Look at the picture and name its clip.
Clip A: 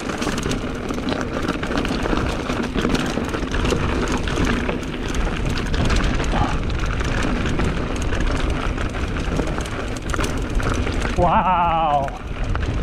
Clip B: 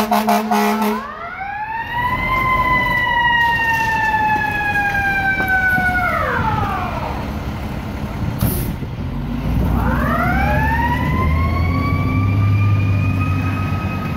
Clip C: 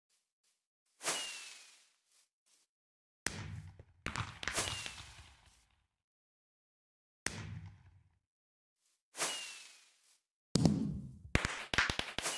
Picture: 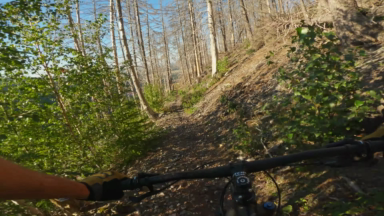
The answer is A